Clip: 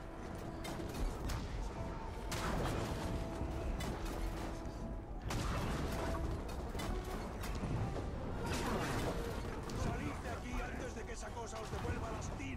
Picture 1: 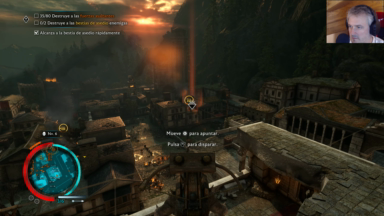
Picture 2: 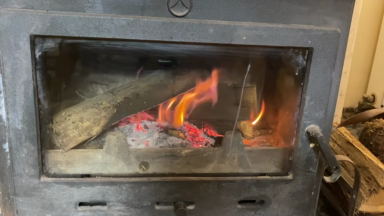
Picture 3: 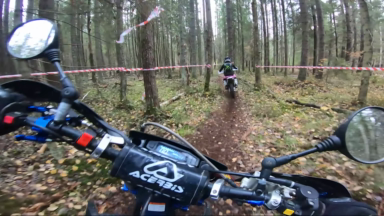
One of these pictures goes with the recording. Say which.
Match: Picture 1